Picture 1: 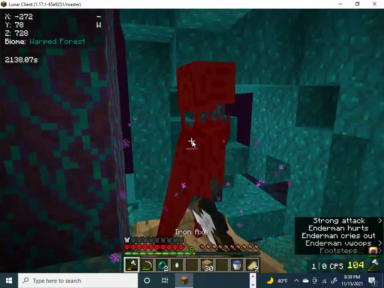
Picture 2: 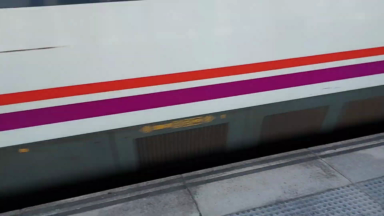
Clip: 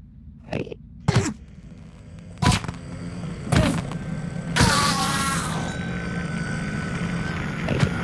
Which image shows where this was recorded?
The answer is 1